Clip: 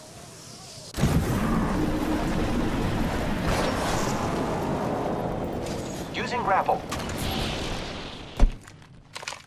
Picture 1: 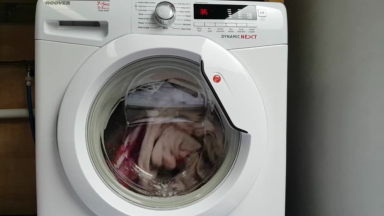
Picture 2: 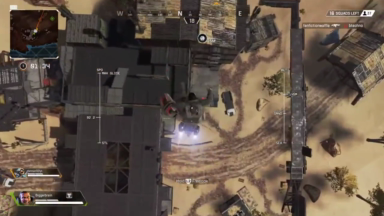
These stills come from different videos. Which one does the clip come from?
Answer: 2